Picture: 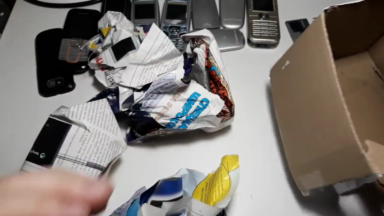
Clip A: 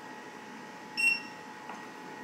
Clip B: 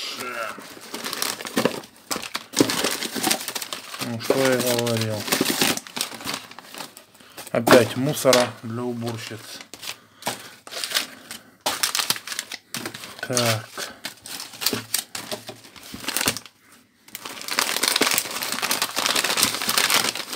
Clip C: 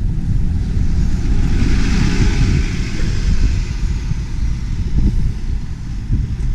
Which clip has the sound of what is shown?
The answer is B